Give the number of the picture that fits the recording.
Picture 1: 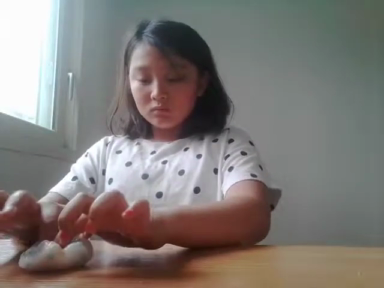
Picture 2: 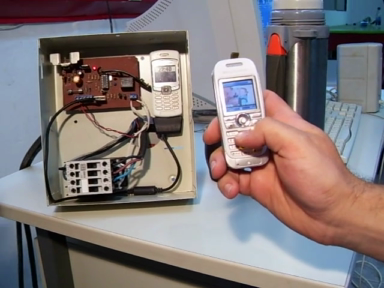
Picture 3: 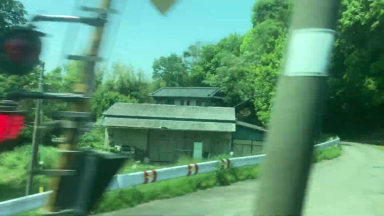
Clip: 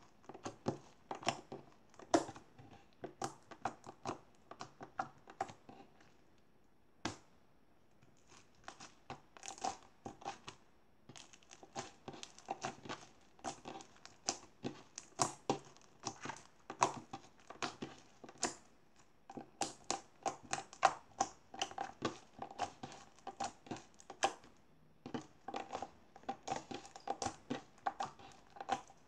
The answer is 1